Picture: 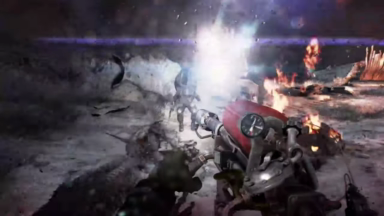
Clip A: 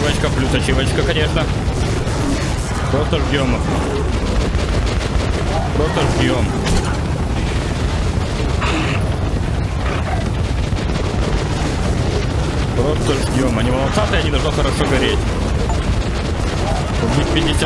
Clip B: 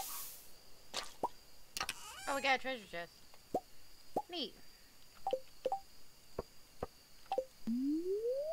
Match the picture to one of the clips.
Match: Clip A